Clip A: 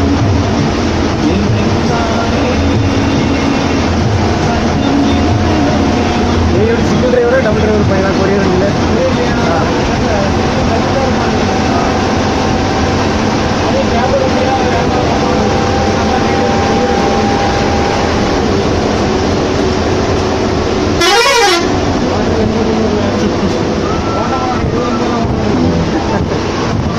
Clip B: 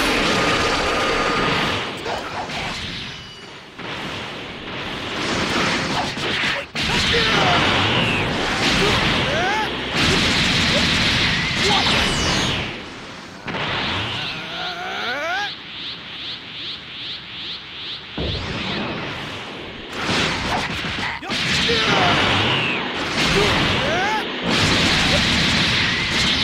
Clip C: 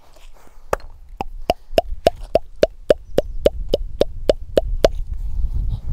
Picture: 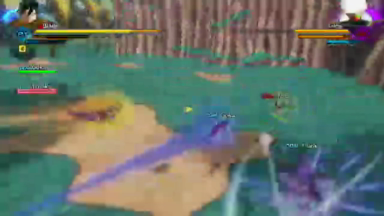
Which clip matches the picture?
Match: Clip B